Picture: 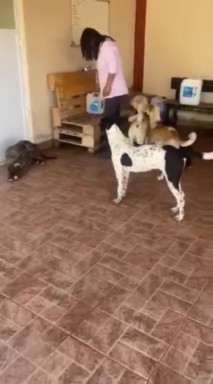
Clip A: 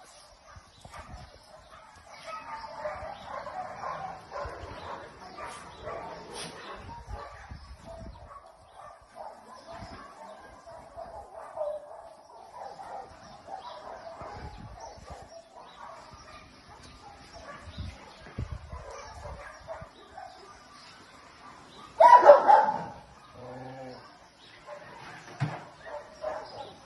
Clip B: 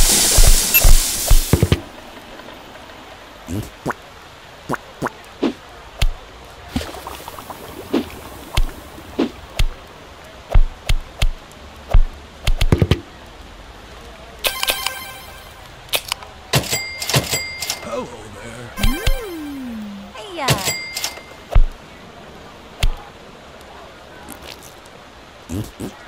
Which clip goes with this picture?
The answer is A